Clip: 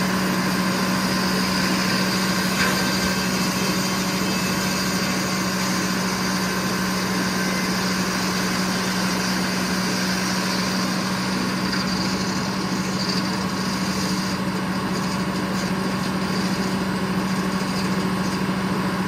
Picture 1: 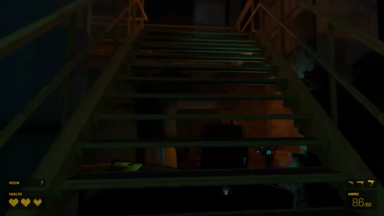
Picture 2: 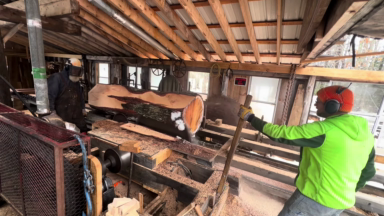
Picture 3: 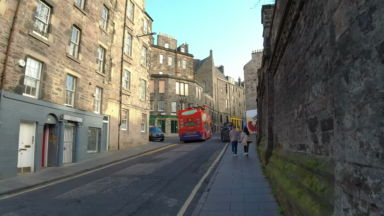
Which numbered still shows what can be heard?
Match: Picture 2